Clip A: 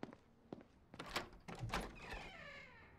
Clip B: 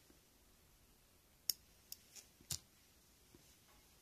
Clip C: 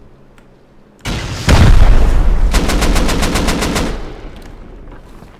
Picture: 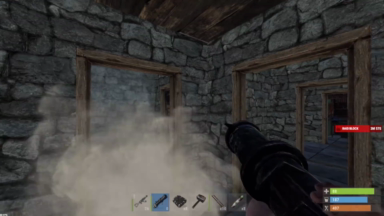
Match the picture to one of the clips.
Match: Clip C